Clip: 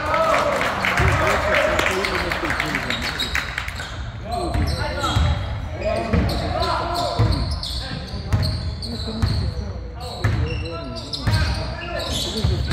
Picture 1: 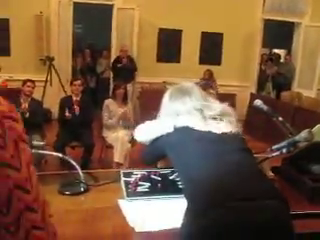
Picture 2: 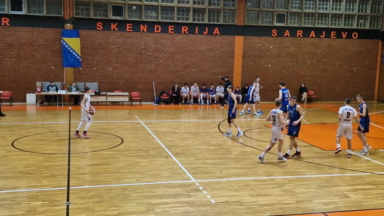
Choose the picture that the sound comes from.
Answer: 2